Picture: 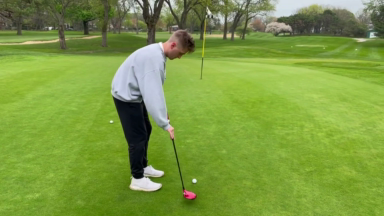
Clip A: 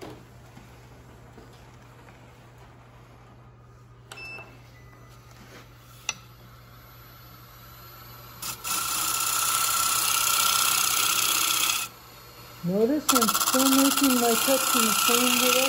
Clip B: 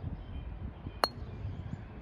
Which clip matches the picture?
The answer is B